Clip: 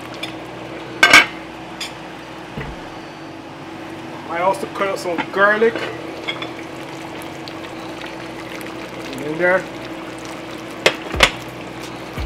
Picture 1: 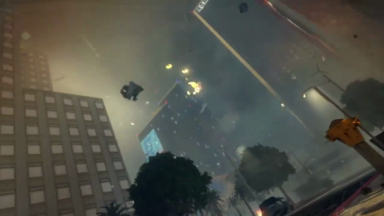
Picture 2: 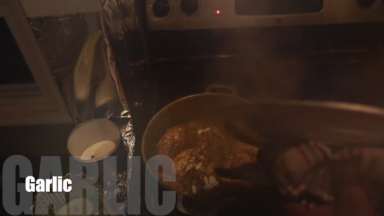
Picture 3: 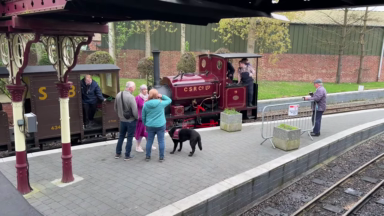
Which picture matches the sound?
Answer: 2